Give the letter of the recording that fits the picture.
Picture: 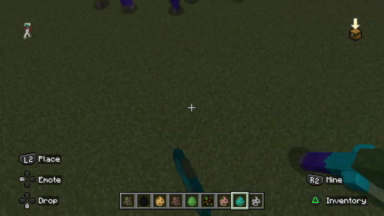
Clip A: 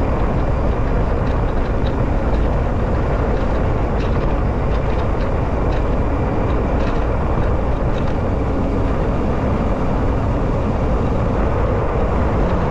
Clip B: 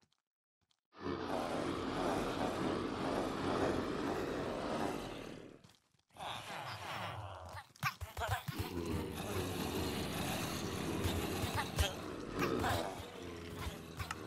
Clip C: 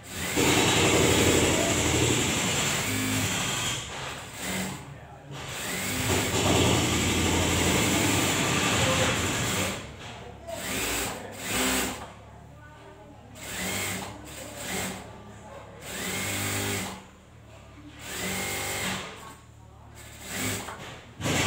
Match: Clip B